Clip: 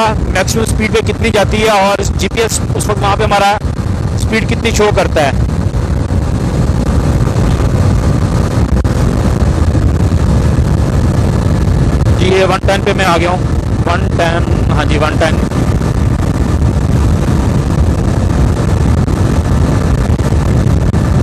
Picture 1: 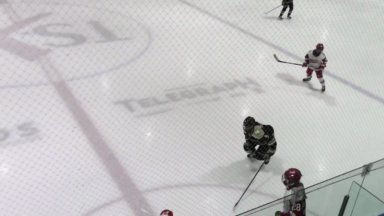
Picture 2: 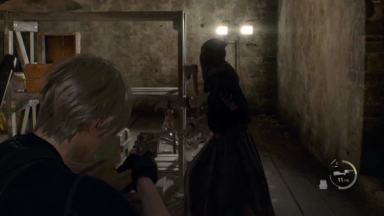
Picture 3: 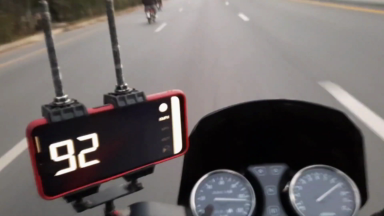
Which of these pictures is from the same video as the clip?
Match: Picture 3